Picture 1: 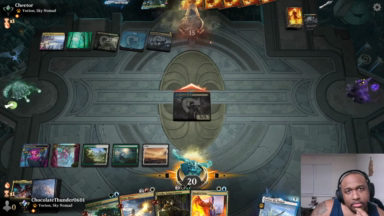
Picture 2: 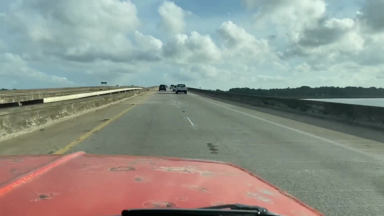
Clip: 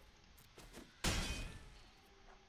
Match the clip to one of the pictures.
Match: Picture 1